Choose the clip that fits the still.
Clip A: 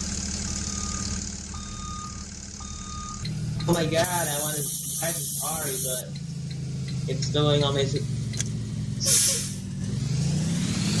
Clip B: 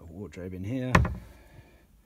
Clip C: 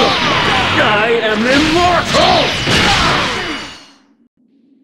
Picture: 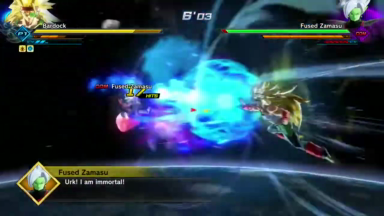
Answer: C